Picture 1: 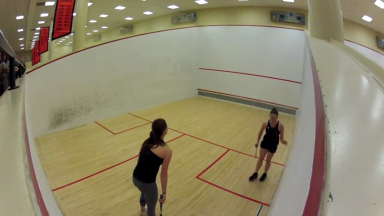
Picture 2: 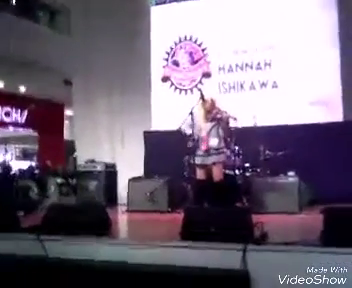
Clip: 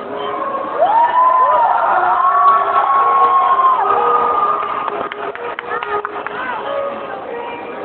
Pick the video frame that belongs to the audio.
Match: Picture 2